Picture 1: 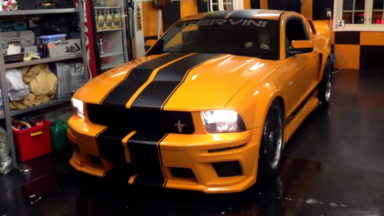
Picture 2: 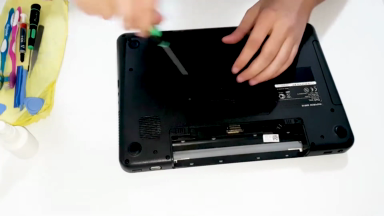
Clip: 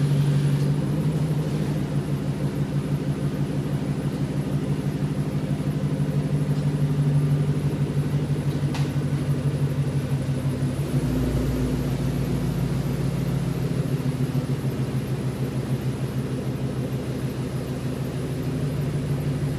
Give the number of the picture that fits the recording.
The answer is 1